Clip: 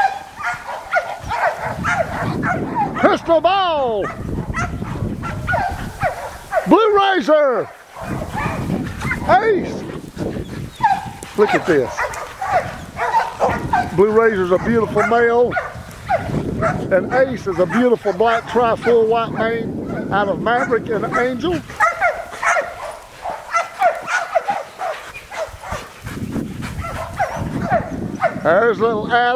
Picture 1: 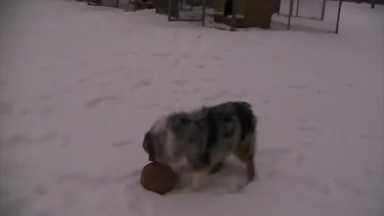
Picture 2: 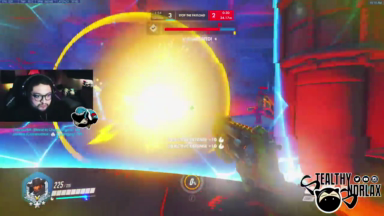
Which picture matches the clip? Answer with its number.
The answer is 1